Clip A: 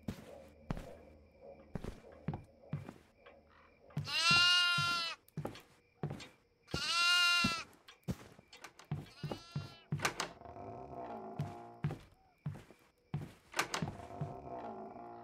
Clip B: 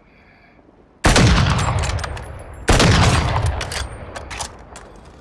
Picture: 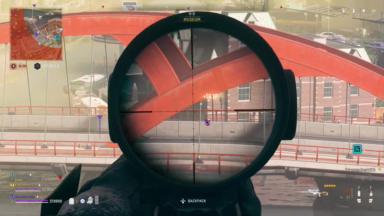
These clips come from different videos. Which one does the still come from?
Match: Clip B